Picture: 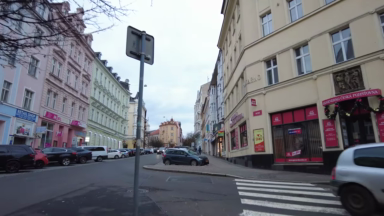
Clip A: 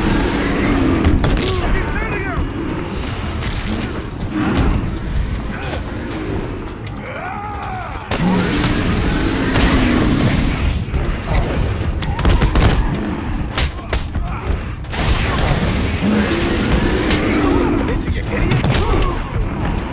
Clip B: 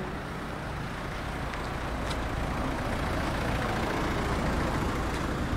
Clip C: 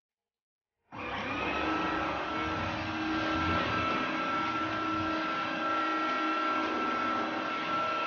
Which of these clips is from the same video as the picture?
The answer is B